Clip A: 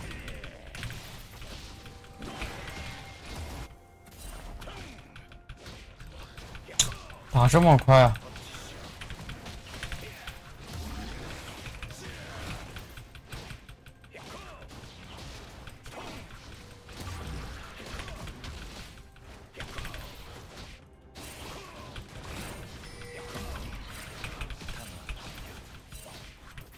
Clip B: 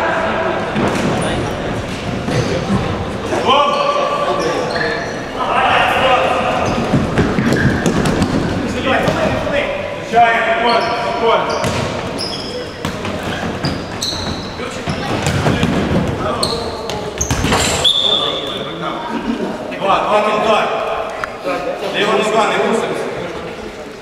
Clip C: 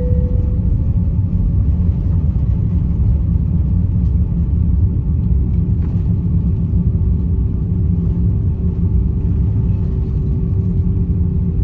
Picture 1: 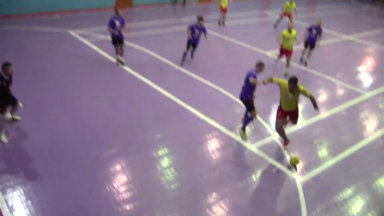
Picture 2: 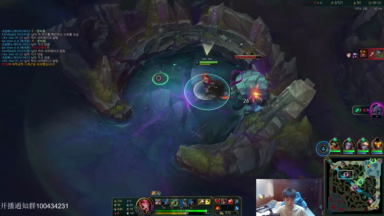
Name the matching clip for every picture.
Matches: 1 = B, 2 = A